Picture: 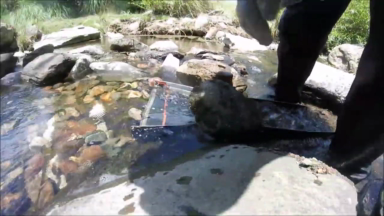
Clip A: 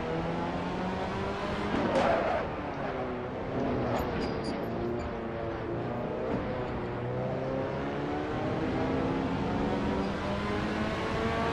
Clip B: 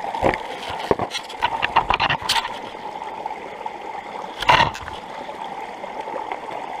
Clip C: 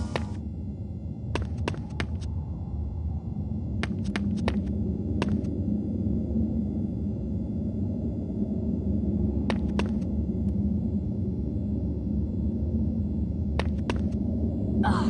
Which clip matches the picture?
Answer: B